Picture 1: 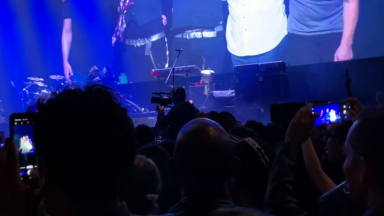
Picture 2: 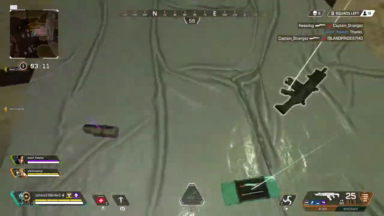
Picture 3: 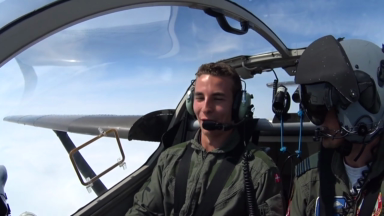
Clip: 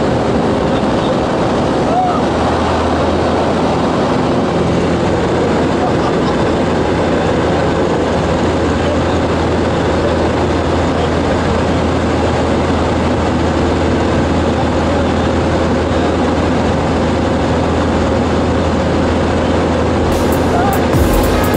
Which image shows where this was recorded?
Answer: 3